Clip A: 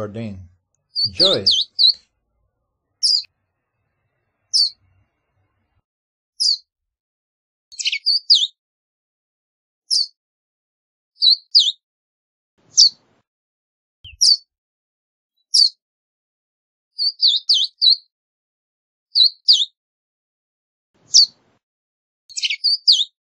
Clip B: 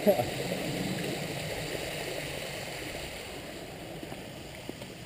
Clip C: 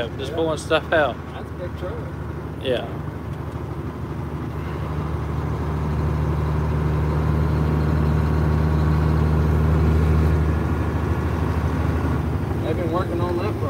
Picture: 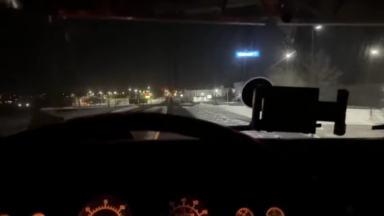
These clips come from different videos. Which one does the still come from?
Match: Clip C